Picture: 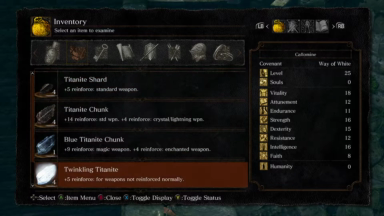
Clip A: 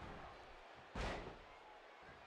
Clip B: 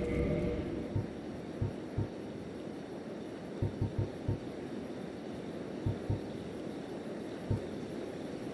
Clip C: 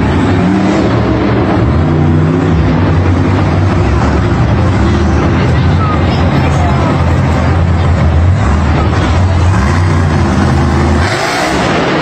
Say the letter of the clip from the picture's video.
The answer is B